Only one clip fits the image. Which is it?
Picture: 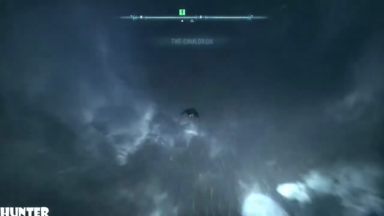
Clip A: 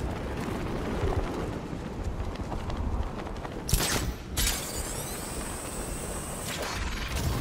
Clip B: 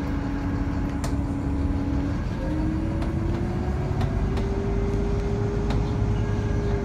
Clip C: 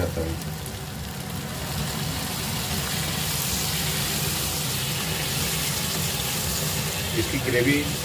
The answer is A